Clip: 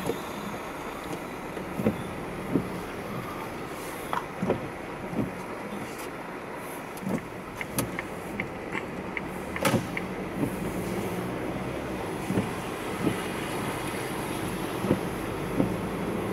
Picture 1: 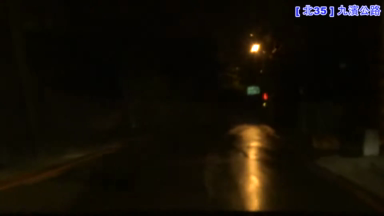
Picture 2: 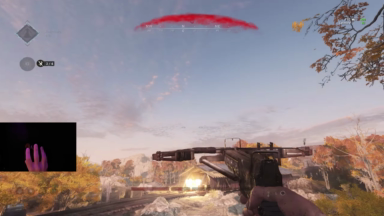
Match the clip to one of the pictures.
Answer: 1